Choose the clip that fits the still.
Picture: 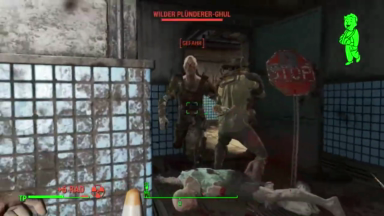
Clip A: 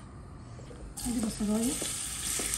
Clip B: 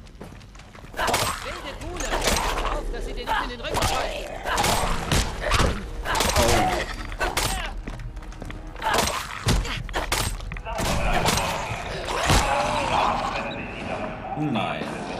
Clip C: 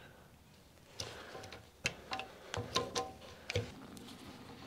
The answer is B